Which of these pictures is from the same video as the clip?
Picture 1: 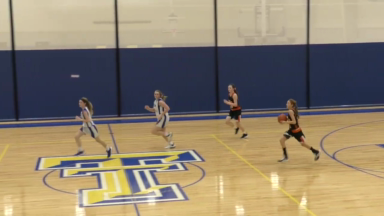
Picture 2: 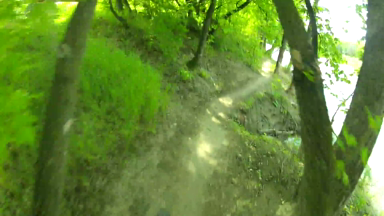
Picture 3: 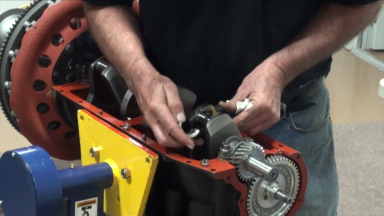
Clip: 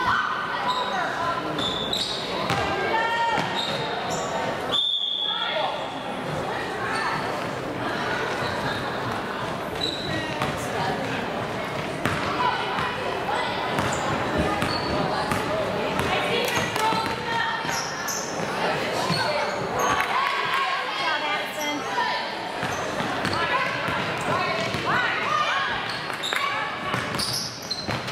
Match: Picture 1